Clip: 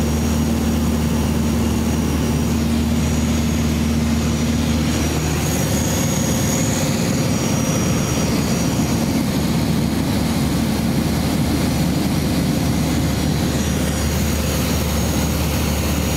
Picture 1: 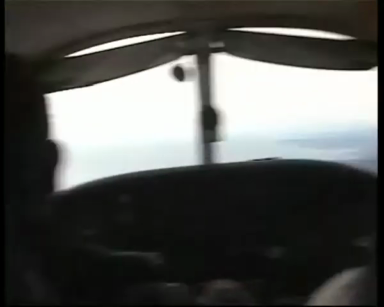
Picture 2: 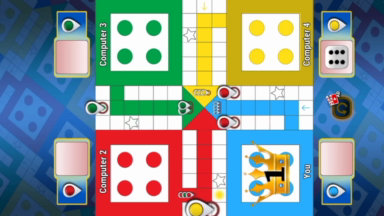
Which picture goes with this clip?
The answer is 1